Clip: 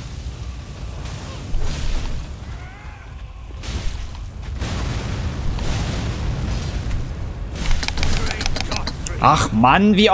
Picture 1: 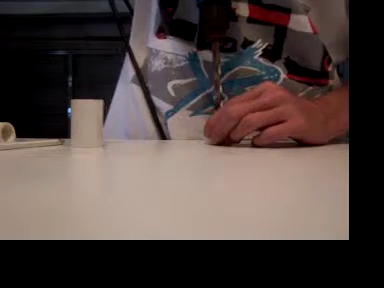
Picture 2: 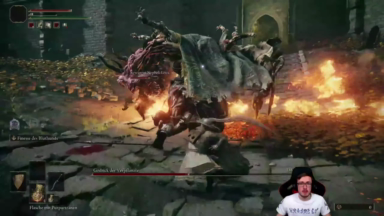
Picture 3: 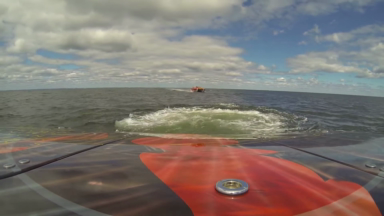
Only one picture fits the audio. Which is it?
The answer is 2